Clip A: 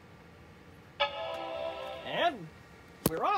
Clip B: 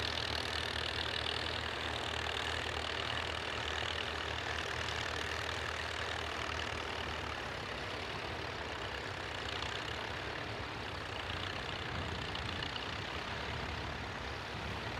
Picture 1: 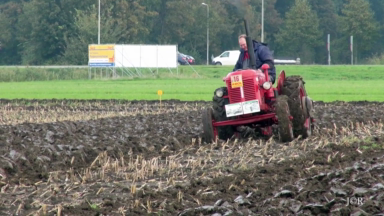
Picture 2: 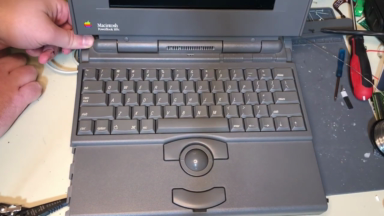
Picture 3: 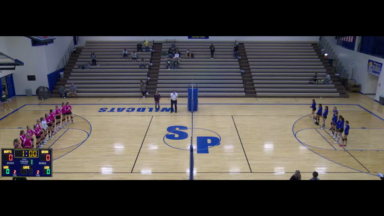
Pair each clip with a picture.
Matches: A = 2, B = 1